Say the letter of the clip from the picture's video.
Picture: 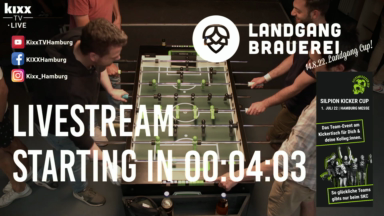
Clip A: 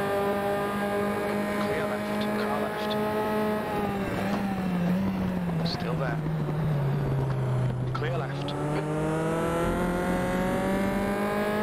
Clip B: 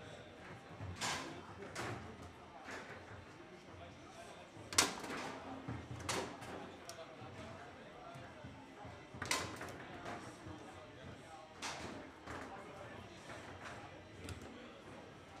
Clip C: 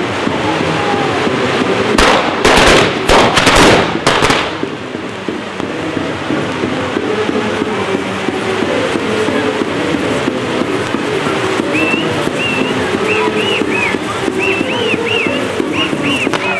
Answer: B